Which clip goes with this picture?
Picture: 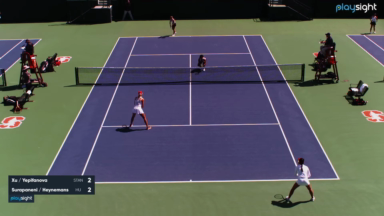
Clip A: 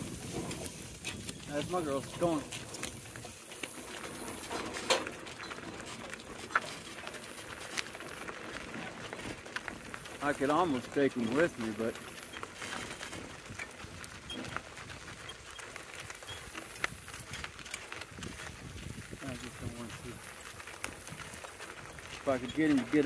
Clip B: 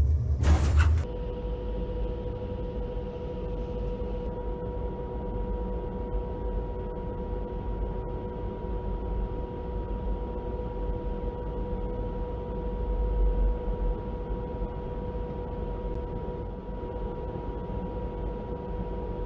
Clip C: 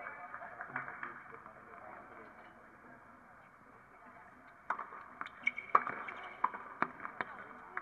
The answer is C